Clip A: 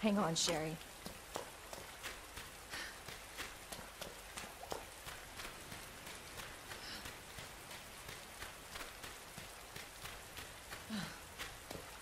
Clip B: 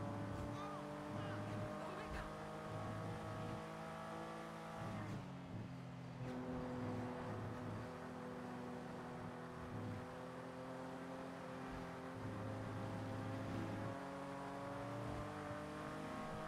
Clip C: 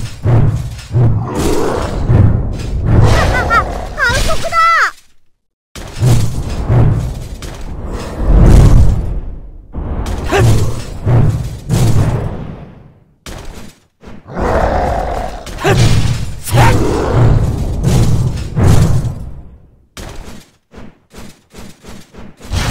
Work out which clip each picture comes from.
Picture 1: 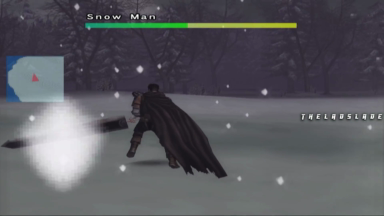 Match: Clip C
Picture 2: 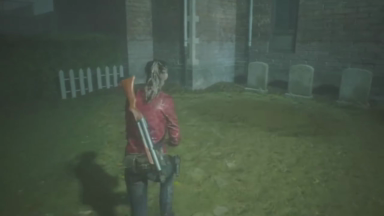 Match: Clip A